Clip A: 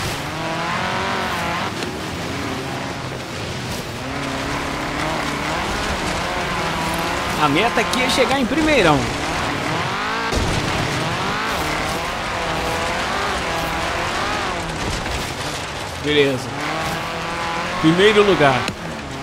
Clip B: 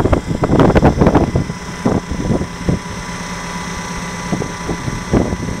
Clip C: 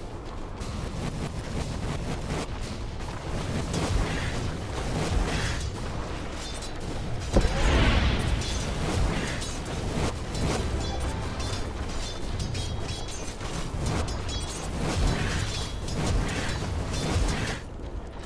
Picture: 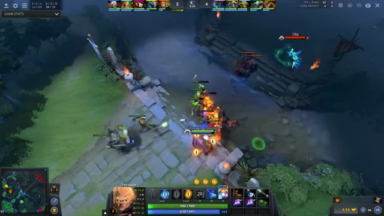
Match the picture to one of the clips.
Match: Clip C